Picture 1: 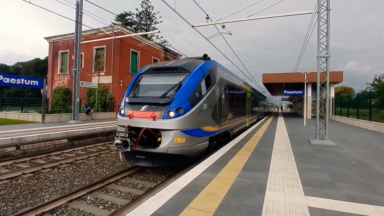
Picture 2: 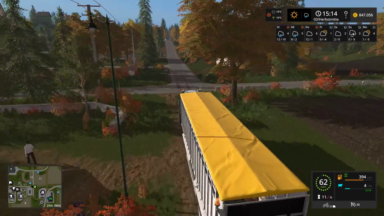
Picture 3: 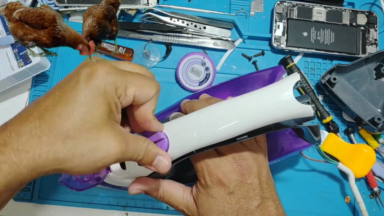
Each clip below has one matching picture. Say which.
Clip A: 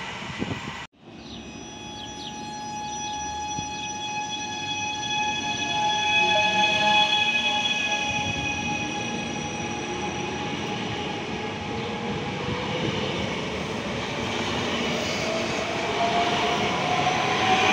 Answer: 1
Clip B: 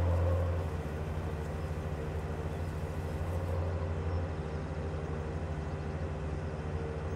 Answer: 2